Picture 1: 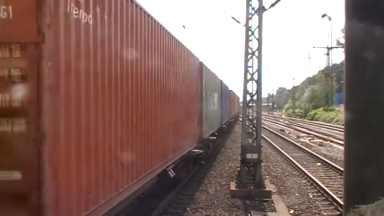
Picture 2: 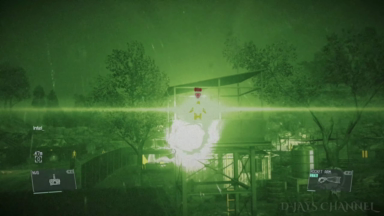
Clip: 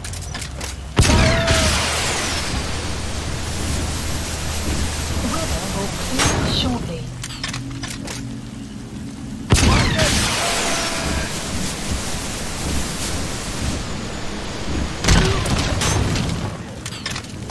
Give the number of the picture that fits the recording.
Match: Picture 2